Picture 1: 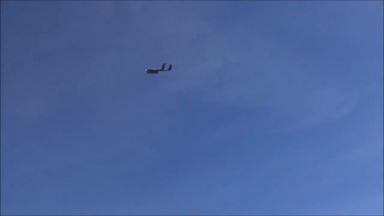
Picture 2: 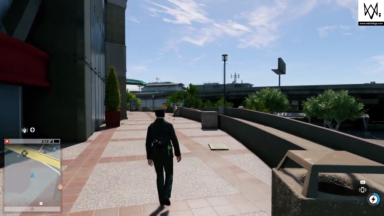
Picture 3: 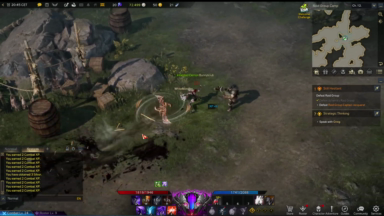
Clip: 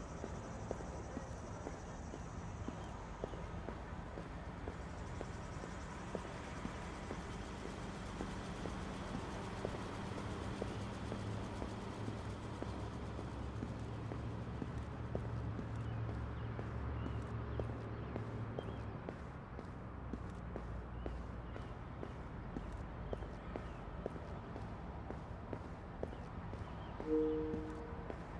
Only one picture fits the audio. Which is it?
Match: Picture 2